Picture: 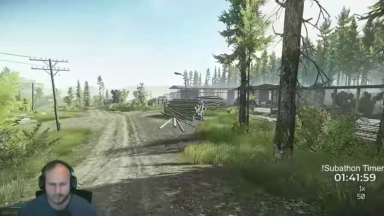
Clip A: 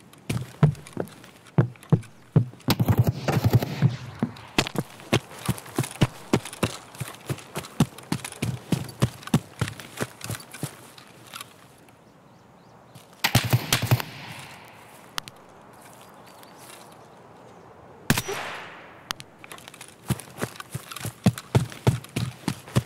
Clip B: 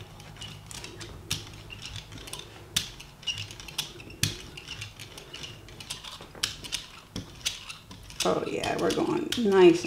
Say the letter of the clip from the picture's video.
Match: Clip A